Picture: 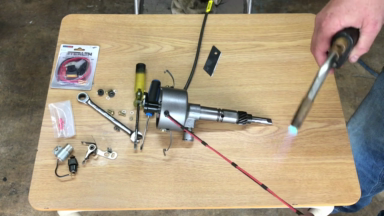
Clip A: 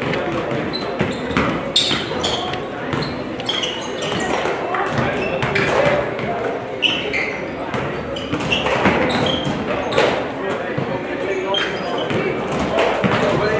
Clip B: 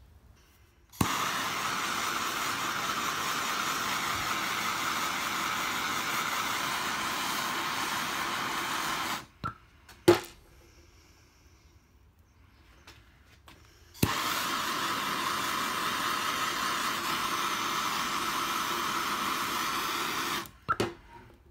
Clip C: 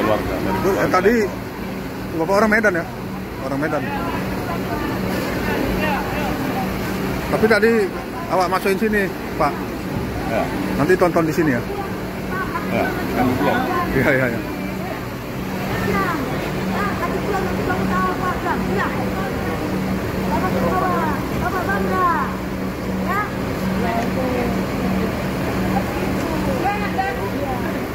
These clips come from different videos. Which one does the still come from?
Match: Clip B